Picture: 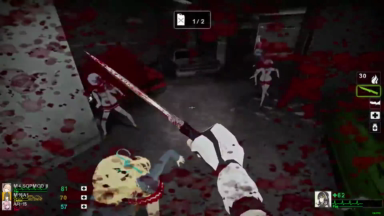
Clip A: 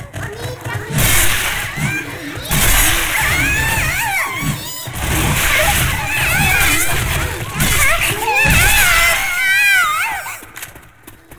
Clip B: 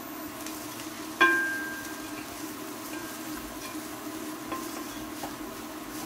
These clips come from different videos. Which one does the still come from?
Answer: A